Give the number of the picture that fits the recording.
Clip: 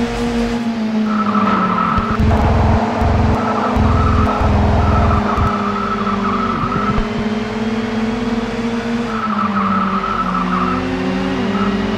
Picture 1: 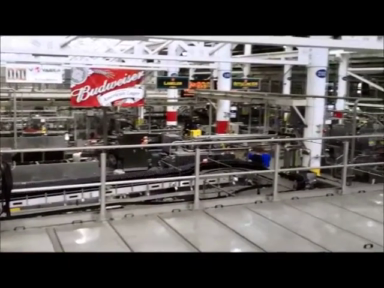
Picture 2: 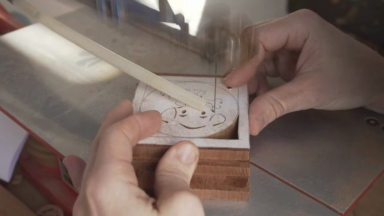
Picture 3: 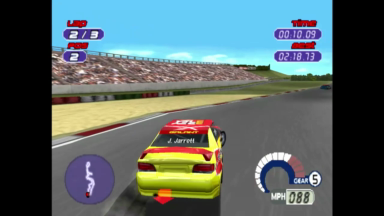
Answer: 3